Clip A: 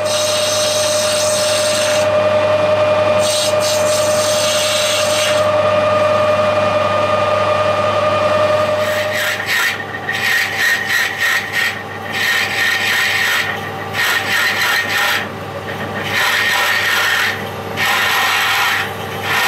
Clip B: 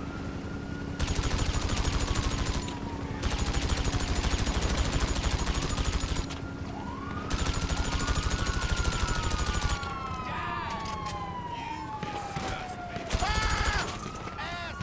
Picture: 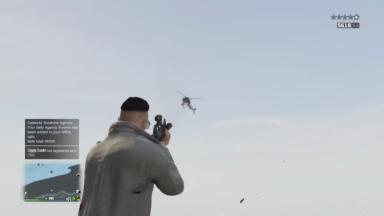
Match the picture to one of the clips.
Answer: B